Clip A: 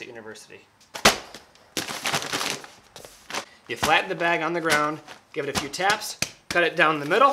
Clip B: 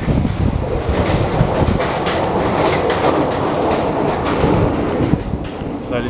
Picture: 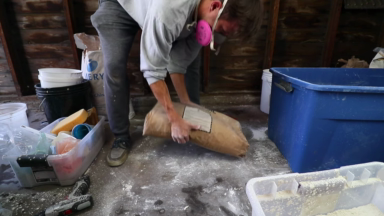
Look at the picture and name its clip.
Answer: A